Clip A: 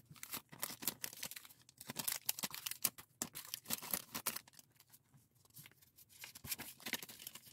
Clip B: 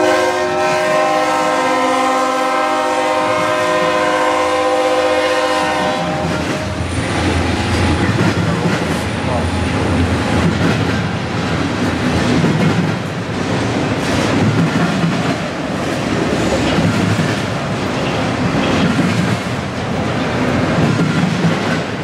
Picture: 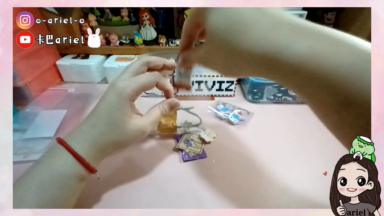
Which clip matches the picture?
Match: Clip A